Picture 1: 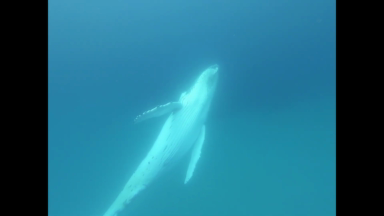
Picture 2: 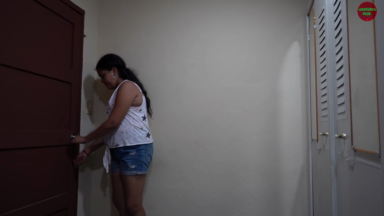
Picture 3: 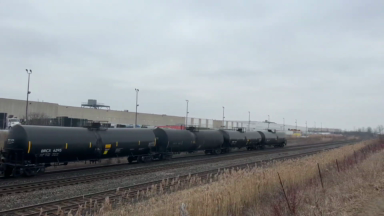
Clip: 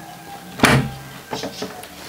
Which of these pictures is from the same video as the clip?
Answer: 2